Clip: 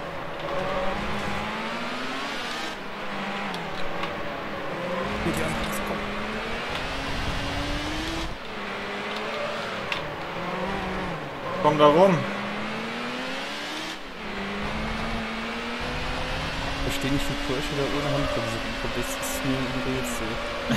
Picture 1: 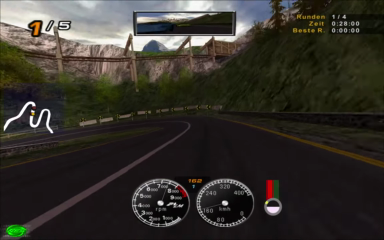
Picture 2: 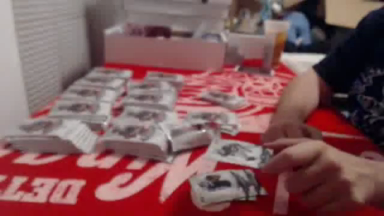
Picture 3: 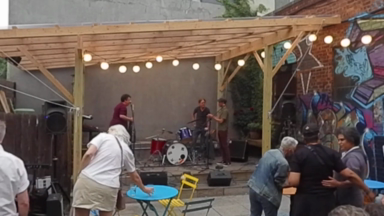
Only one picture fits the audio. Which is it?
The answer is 1